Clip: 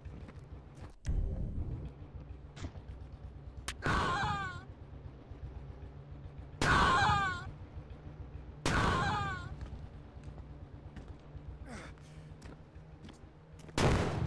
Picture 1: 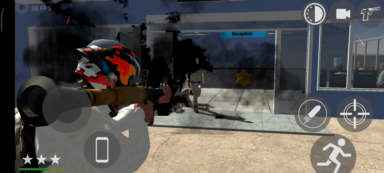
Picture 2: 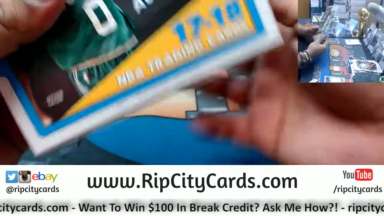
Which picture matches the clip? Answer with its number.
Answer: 1